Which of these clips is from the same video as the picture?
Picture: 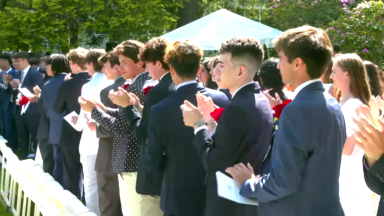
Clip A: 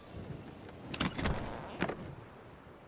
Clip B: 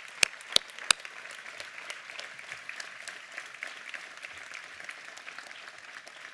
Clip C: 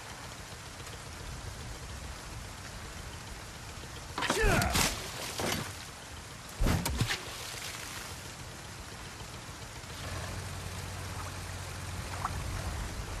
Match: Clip B